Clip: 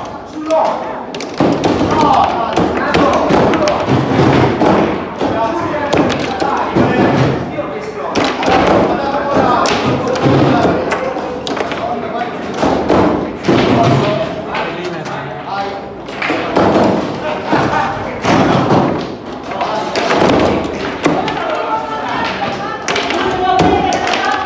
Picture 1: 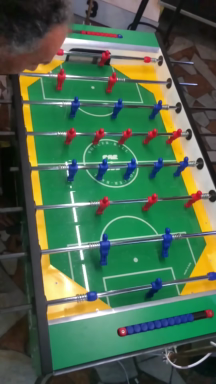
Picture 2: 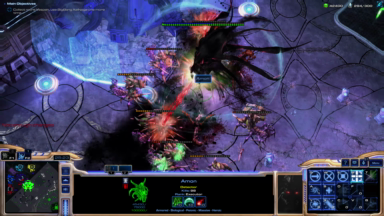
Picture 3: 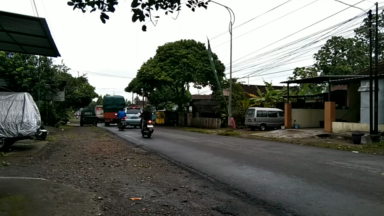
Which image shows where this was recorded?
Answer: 1